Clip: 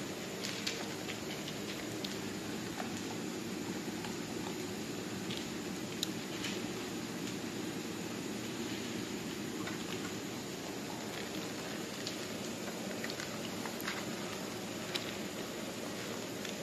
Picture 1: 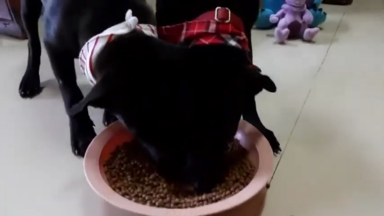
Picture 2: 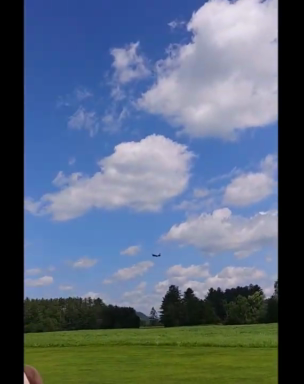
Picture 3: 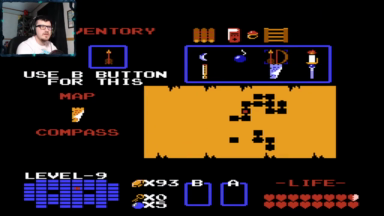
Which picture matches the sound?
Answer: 1